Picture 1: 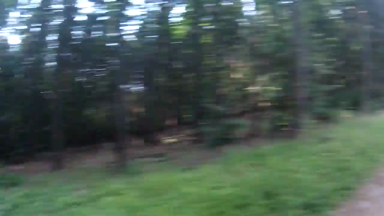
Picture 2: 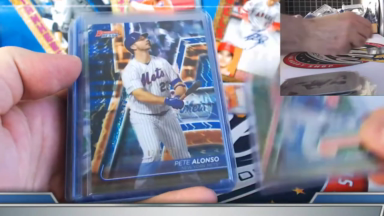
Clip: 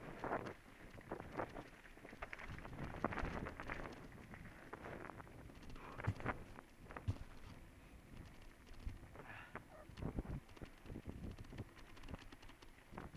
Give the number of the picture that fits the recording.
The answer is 1